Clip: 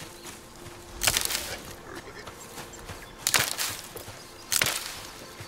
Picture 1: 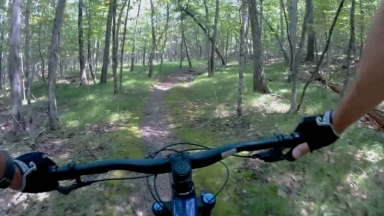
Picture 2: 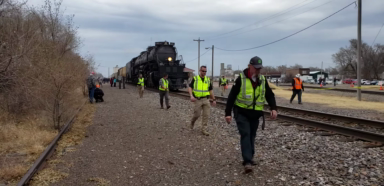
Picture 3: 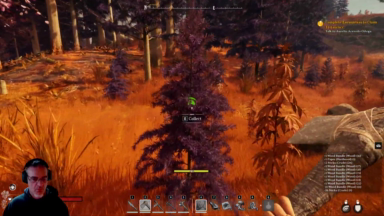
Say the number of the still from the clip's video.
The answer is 3